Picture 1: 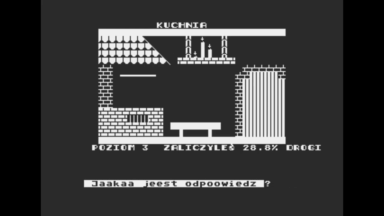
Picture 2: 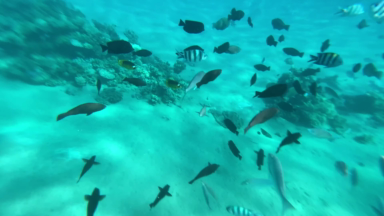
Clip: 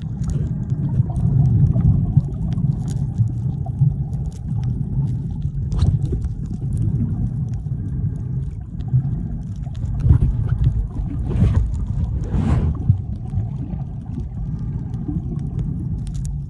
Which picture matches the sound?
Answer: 2